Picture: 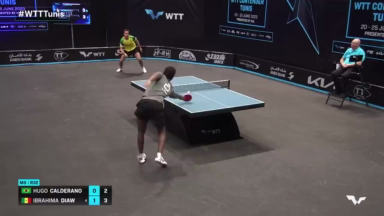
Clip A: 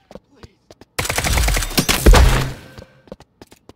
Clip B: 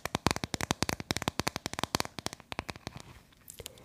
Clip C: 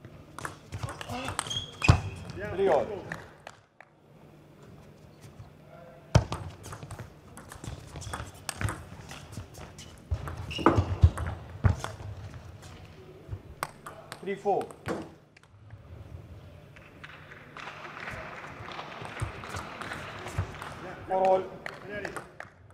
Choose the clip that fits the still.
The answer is C